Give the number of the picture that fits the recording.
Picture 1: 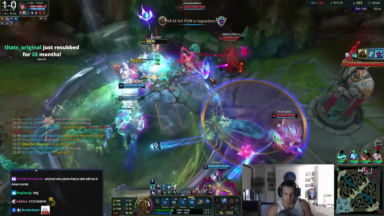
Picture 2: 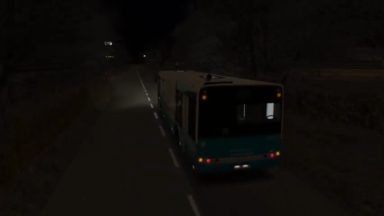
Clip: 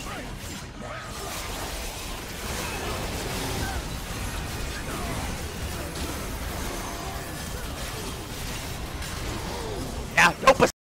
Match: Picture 1